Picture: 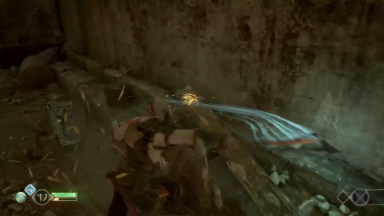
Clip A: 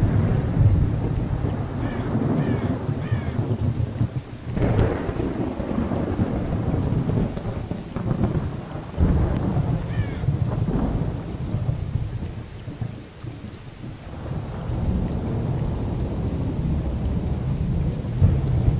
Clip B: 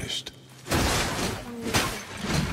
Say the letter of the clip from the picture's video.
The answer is B